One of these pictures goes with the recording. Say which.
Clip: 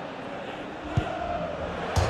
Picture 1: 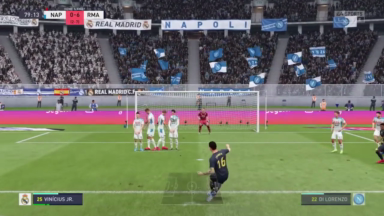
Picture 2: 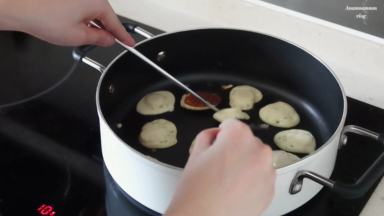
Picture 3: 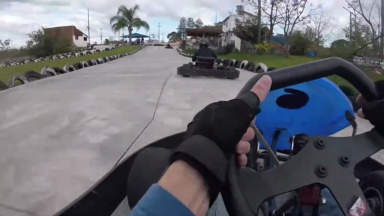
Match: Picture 1